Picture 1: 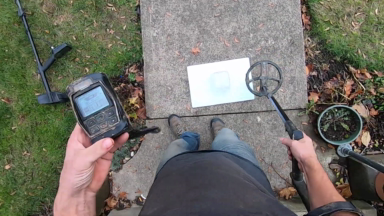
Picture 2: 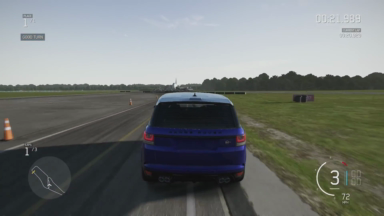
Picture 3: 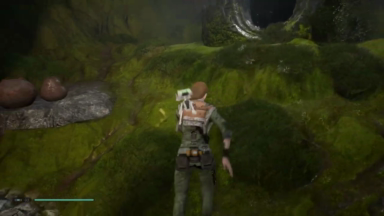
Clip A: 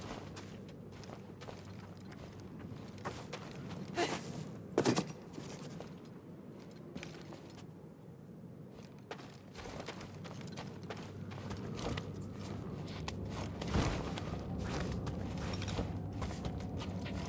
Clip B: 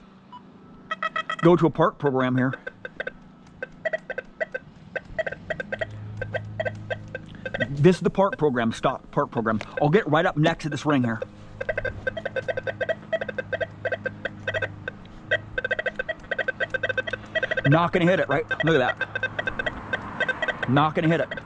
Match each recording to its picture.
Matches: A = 3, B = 1